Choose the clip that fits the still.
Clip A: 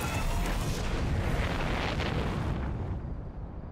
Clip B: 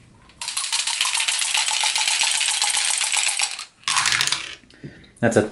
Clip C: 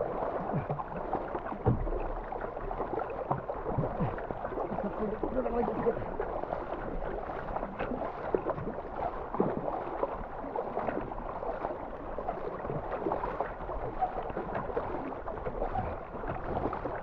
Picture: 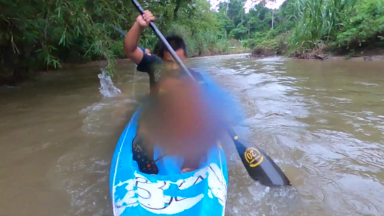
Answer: C